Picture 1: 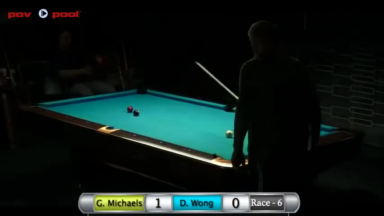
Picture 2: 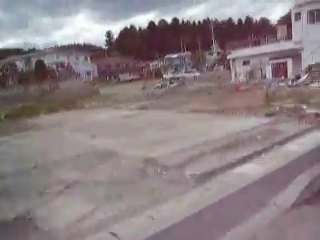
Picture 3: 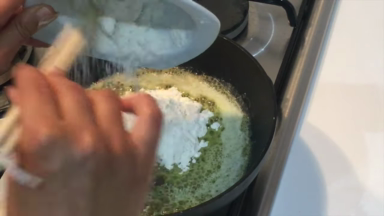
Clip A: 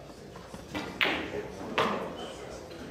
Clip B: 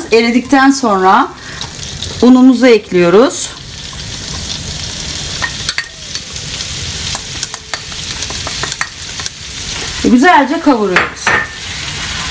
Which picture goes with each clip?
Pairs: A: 1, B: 3